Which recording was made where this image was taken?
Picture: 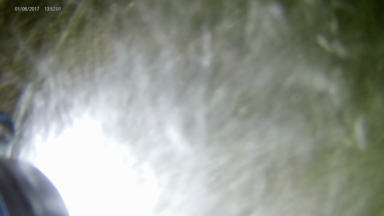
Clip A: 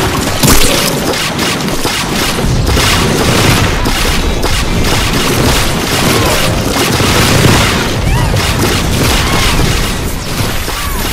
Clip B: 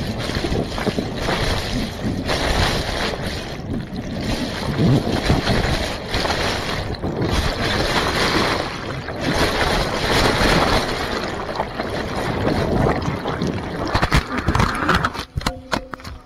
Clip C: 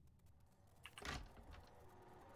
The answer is B